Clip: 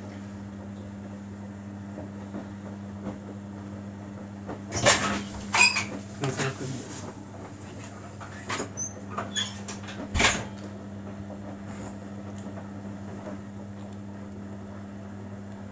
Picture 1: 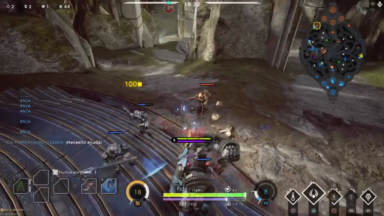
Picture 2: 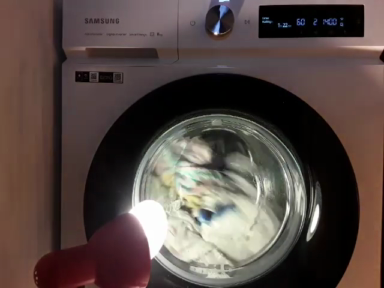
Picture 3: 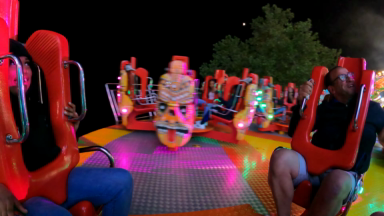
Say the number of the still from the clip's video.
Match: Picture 2